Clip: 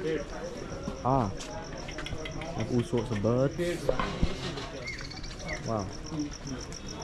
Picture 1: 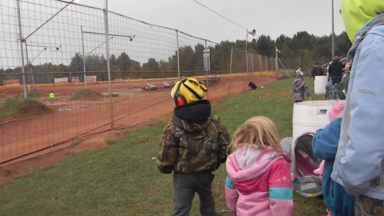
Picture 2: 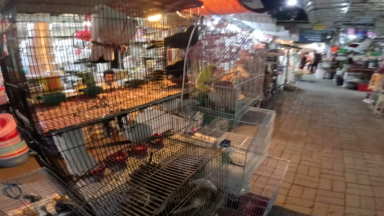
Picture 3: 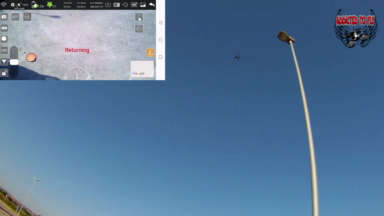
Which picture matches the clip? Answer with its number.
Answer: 2